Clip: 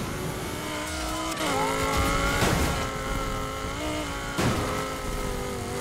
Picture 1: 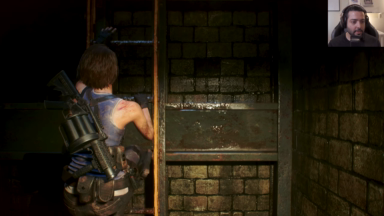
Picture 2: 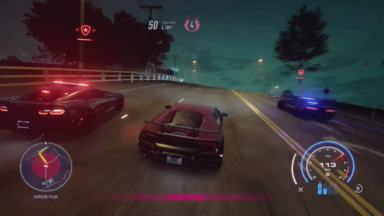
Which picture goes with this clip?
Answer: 2